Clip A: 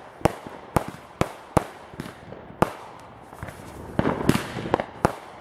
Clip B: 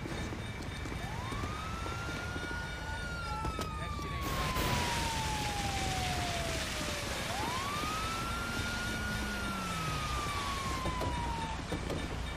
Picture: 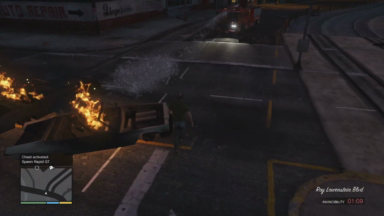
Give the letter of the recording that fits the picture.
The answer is B